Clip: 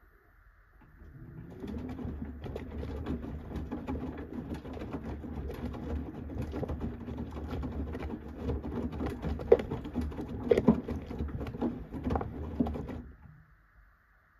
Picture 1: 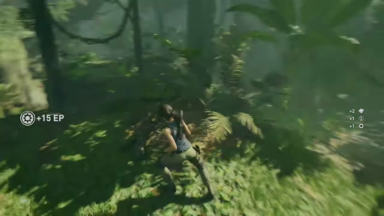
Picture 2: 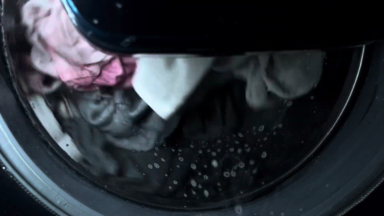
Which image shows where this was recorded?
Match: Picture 2